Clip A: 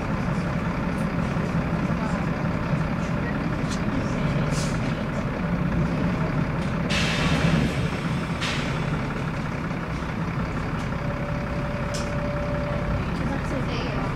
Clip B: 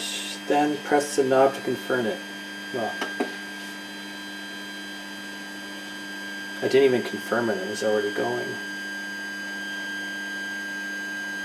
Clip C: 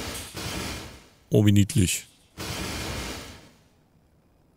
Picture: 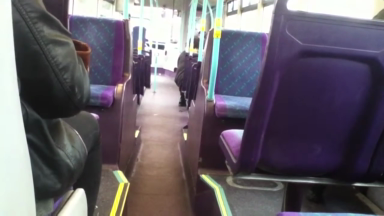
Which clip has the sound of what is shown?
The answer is A